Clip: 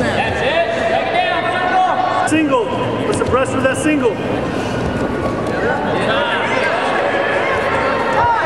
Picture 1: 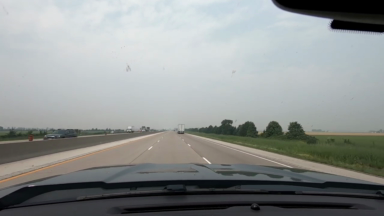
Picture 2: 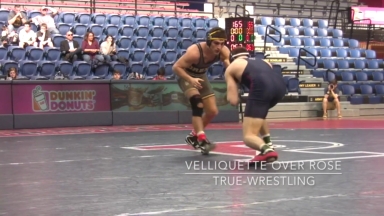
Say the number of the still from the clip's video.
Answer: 2